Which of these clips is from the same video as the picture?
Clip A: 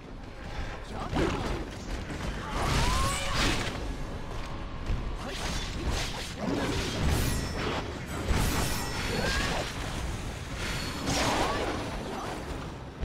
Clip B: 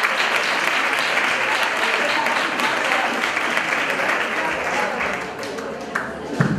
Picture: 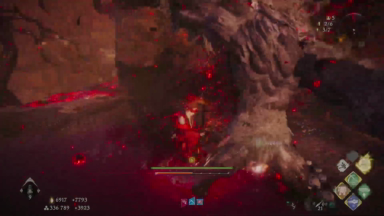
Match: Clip A